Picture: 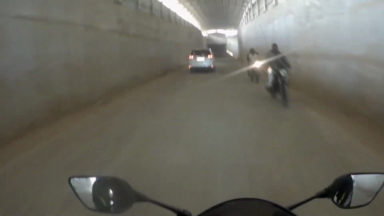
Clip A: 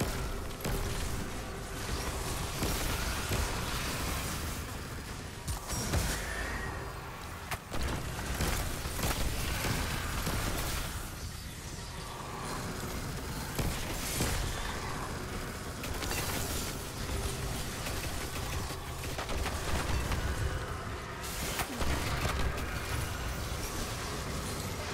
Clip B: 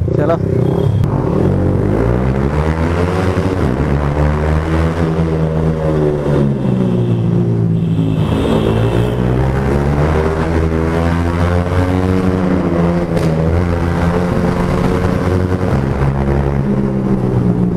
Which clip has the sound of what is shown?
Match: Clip B